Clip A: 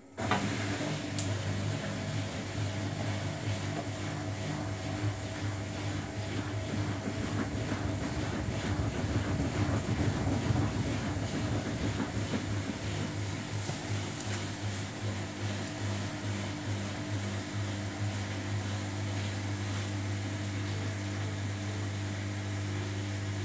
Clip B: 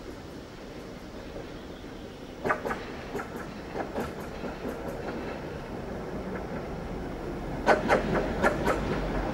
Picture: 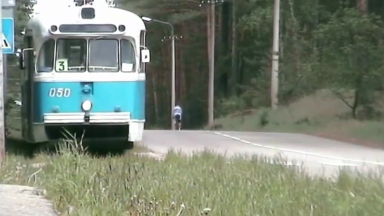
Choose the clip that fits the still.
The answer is B